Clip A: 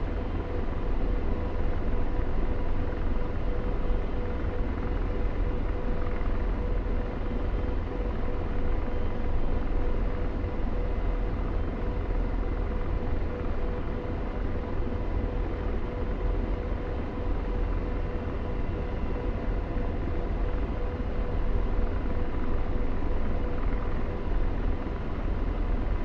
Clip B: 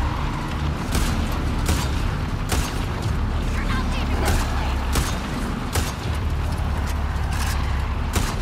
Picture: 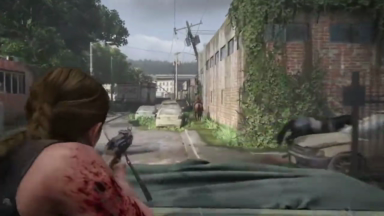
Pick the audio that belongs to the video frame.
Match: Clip B